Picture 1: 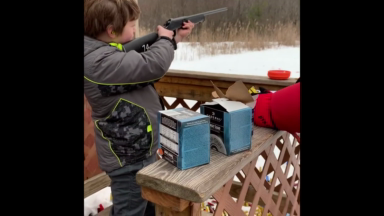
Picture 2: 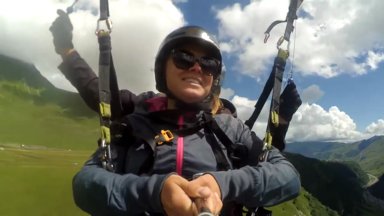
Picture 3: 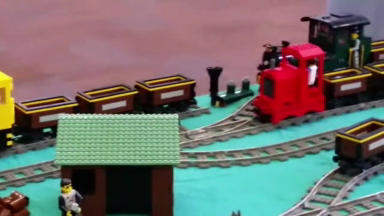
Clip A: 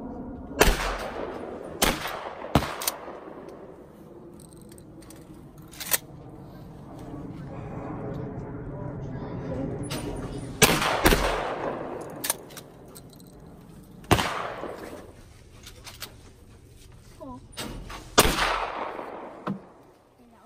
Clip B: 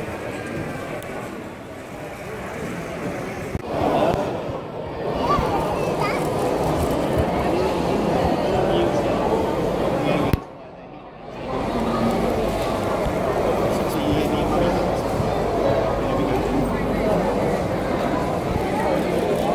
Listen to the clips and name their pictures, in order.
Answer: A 1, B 3